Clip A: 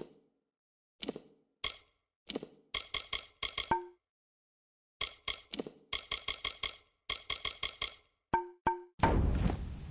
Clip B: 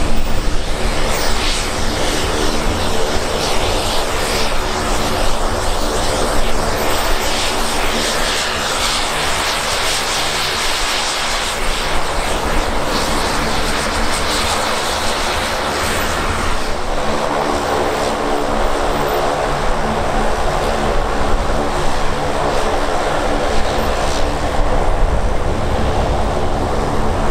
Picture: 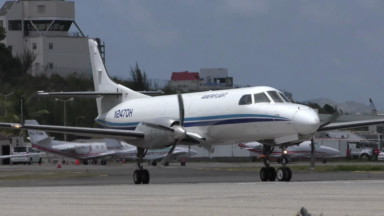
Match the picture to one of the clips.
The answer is B